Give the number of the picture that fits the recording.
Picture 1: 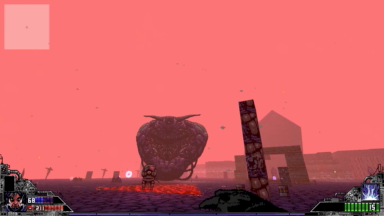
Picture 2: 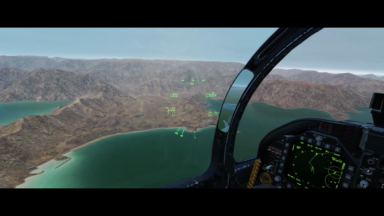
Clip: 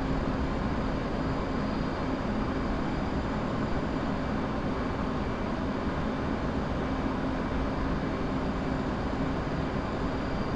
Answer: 2